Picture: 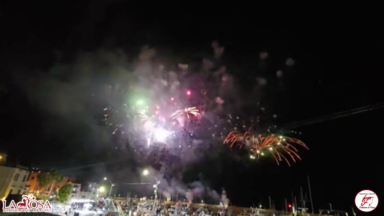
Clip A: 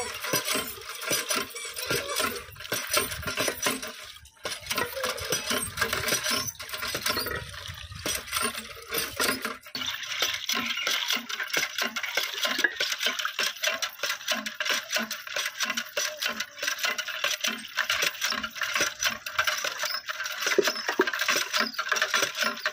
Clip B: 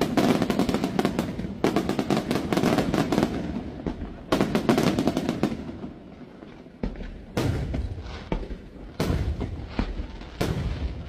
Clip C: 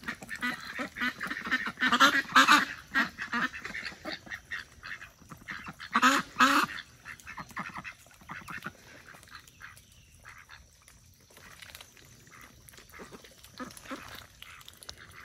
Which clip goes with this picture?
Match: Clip B